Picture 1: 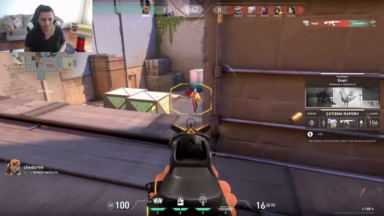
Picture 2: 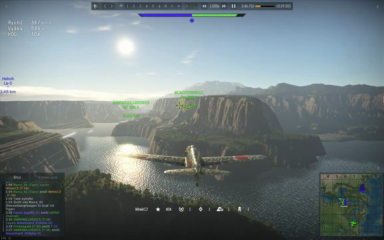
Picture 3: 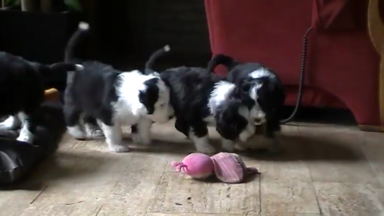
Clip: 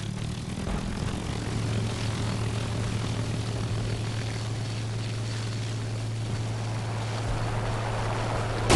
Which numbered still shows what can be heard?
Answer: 2